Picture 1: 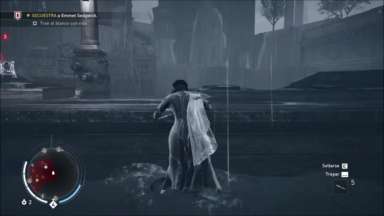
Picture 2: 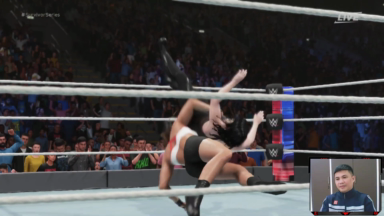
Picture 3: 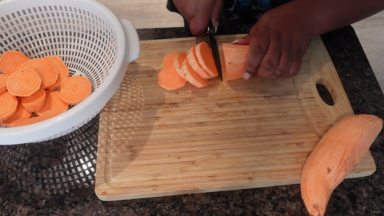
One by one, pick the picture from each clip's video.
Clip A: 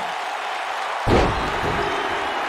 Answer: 2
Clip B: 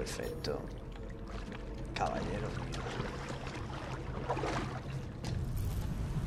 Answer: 1